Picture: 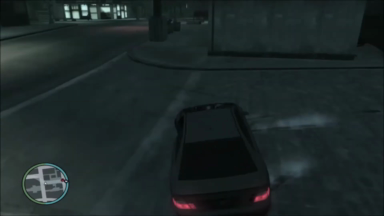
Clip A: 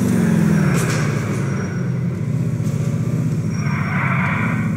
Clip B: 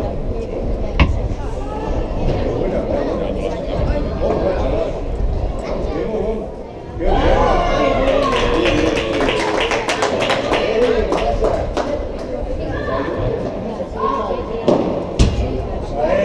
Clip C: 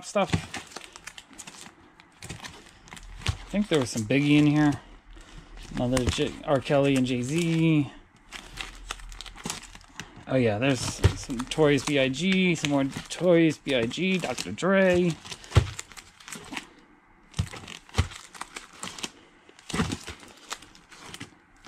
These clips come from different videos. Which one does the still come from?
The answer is A